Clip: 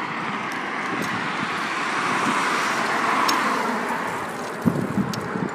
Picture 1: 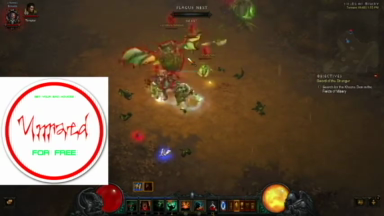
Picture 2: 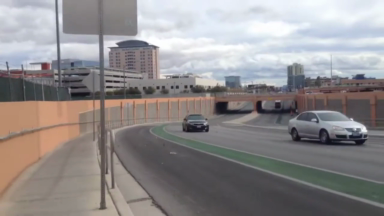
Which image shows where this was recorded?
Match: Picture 2